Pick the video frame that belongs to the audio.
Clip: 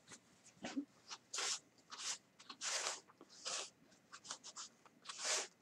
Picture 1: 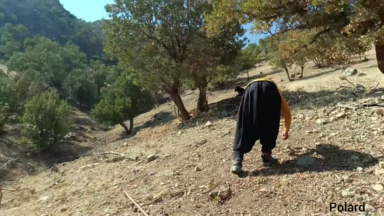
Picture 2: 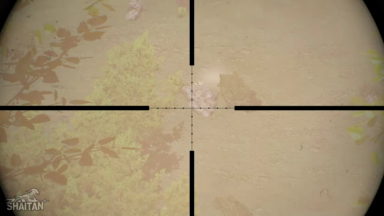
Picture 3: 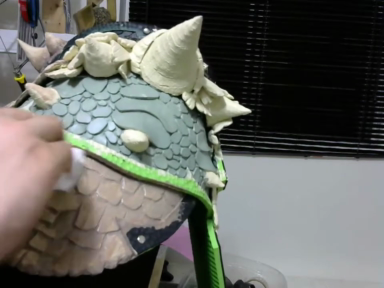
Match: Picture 3